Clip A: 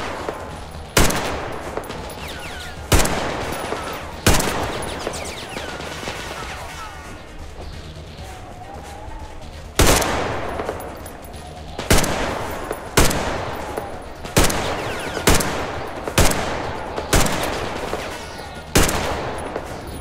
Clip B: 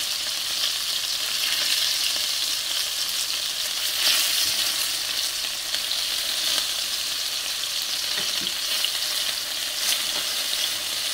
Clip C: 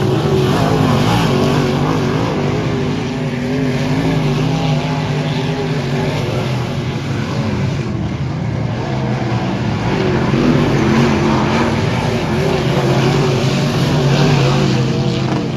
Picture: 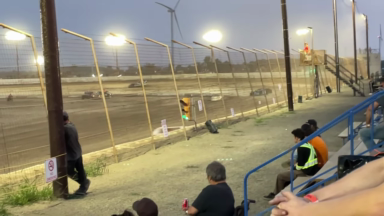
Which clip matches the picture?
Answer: C